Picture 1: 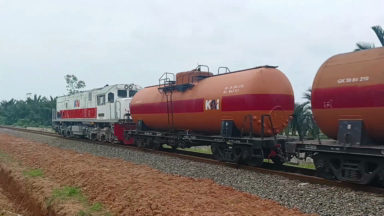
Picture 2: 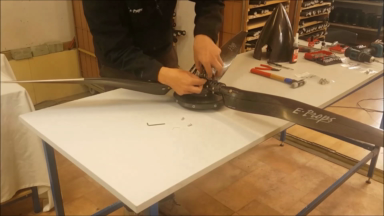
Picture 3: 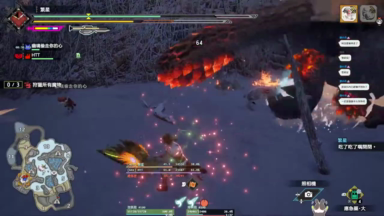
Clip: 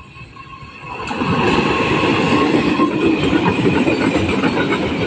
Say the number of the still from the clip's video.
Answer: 1